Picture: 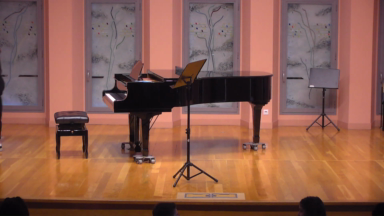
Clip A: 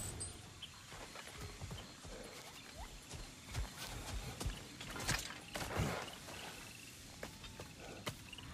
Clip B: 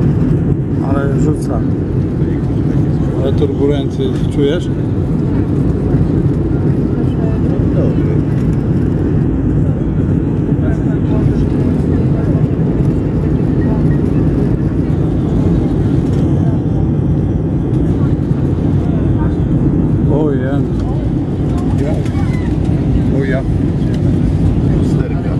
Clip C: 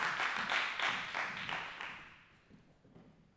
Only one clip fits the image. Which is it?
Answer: C